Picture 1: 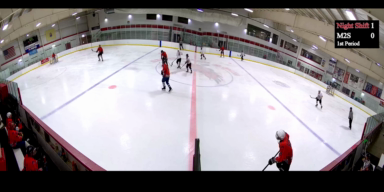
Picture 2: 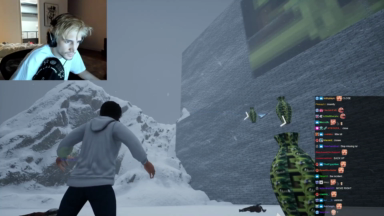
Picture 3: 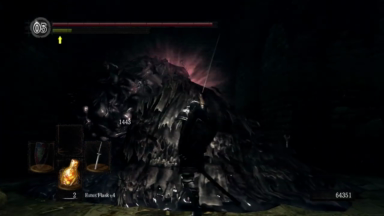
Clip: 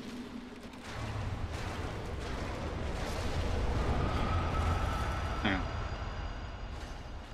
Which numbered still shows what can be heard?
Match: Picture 3